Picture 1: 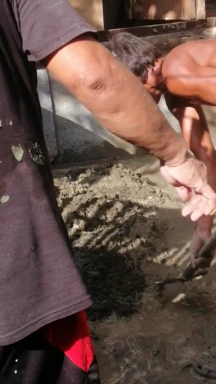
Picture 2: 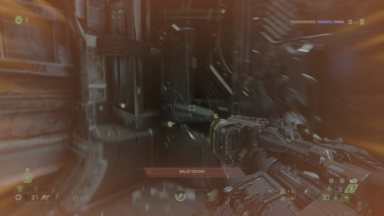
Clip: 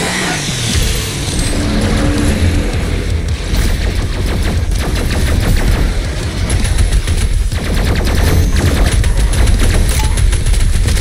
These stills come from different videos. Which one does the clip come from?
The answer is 2